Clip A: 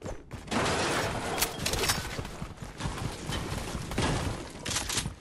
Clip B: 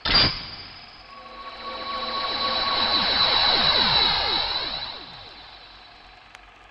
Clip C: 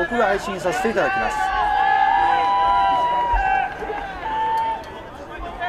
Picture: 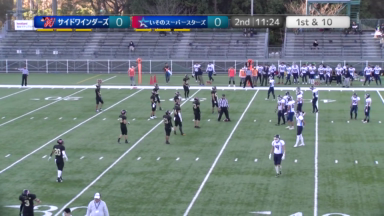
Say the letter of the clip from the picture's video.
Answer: C